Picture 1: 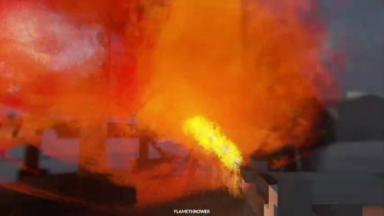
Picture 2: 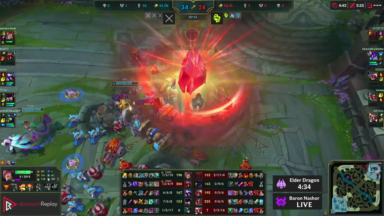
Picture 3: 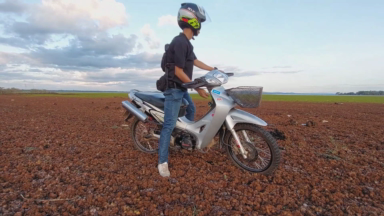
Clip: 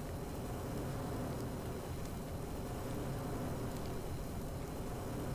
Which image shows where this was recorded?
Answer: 1